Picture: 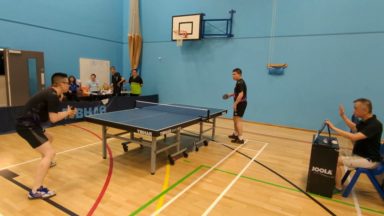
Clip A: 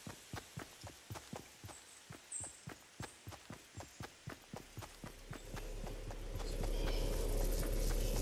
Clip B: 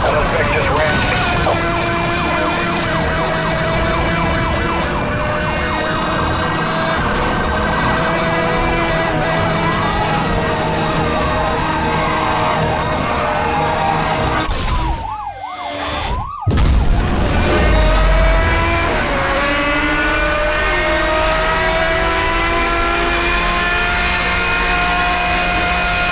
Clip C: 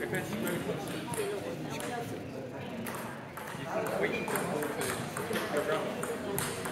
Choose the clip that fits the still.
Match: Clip C